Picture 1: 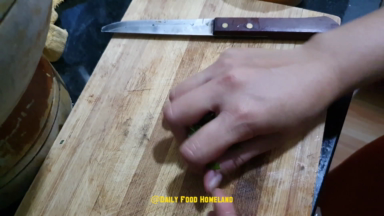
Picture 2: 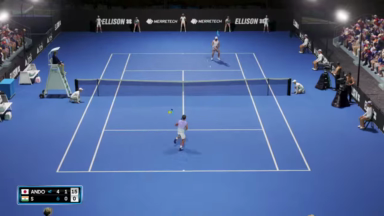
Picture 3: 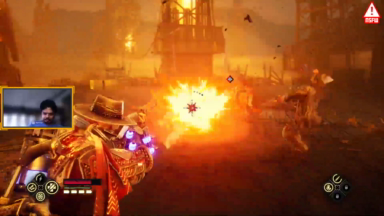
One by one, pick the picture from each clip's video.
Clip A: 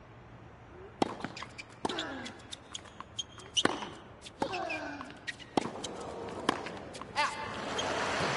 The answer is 2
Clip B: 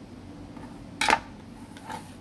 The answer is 1